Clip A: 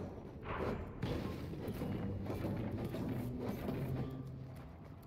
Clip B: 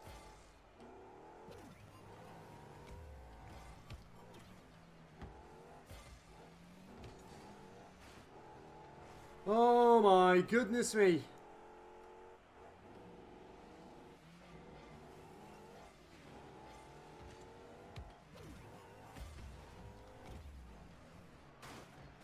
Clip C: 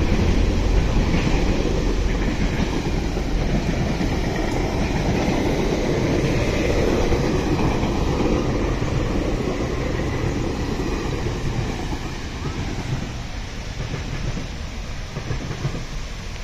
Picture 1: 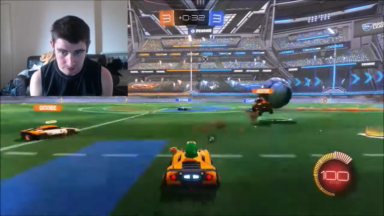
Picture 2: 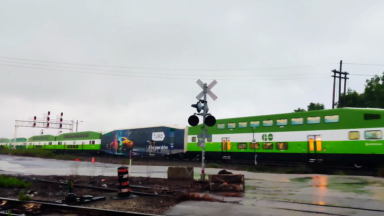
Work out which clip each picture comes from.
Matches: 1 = B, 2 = C